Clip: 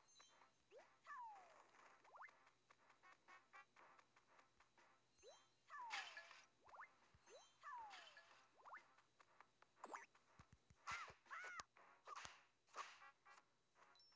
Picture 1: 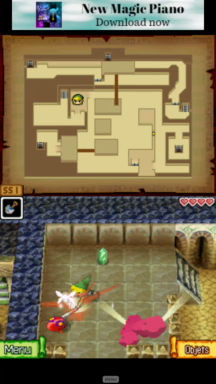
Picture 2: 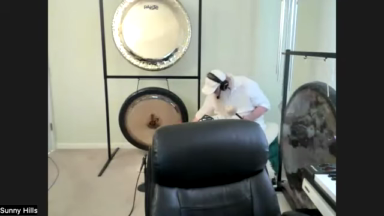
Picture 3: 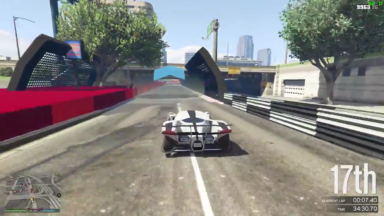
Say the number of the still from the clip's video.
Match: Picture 1